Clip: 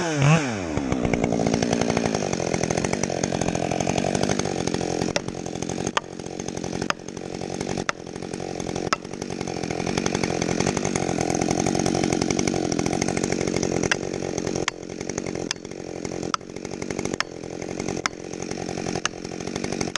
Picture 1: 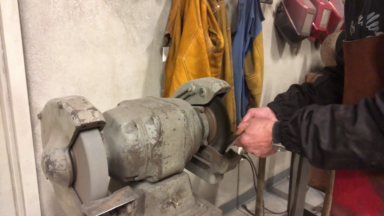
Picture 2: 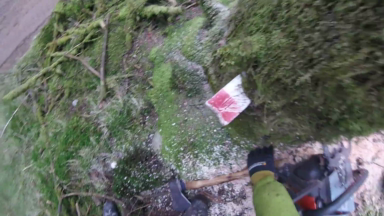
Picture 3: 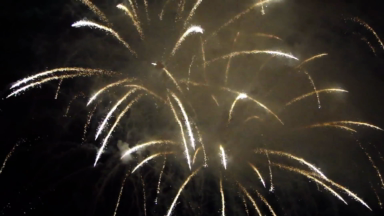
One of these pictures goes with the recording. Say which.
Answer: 2